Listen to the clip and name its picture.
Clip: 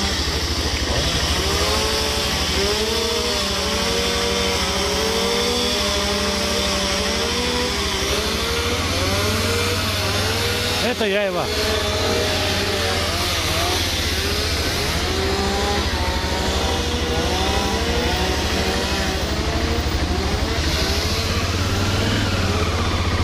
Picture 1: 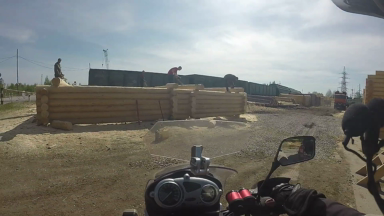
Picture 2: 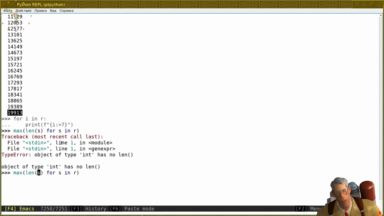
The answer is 1